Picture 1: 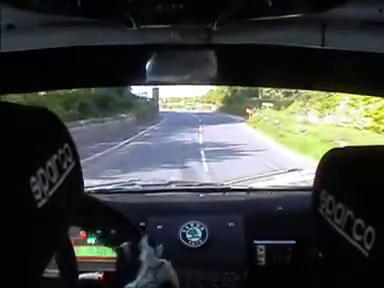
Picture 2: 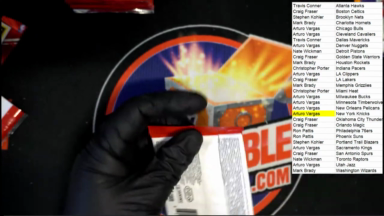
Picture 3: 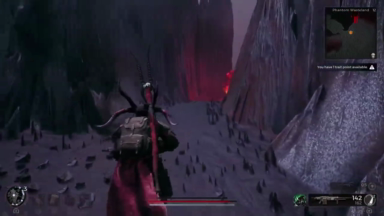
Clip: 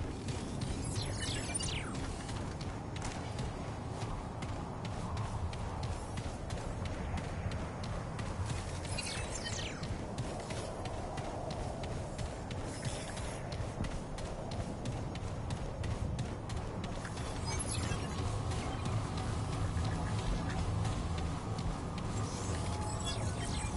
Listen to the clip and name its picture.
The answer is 3